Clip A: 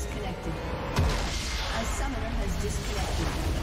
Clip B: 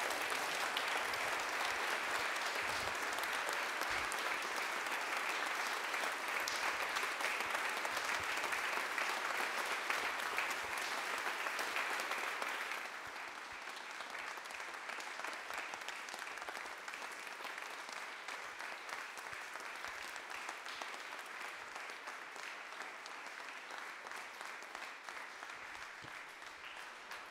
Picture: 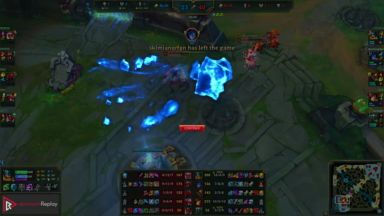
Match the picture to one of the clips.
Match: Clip A